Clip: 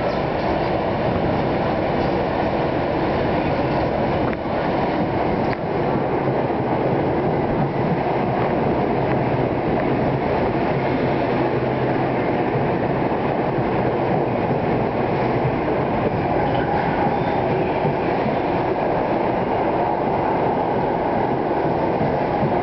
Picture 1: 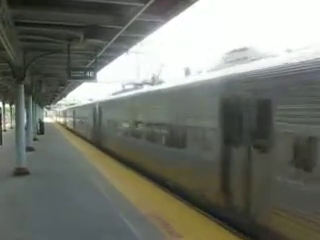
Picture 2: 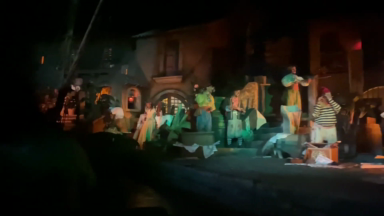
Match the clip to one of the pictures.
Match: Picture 1